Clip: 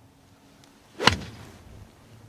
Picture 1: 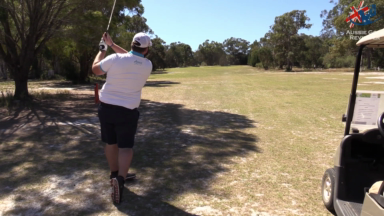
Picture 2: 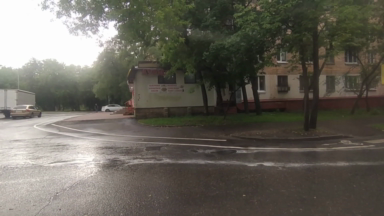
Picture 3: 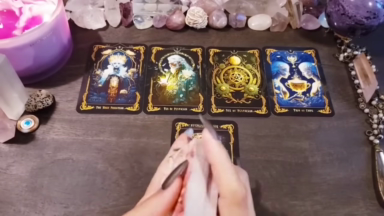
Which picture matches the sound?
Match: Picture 1